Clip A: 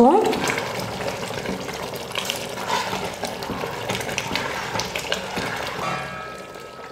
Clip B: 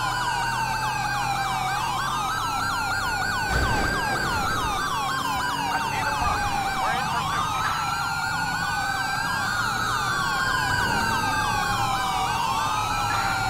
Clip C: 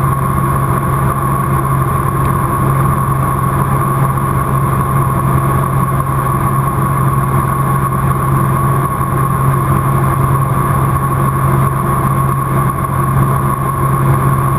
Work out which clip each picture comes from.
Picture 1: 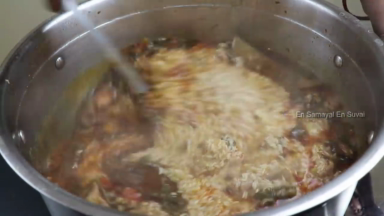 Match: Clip A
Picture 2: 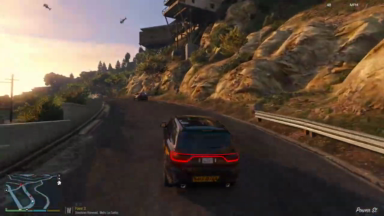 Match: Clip B